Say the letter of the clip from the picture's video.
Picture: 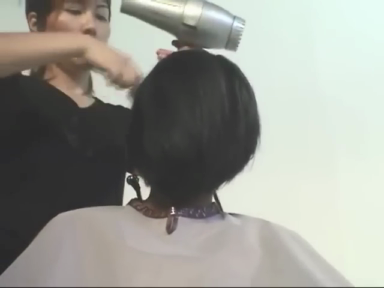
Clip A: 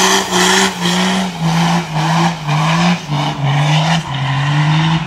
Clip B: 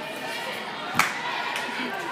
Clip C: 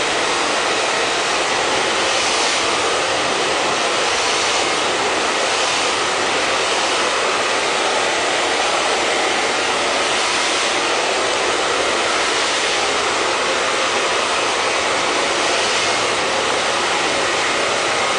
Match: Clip C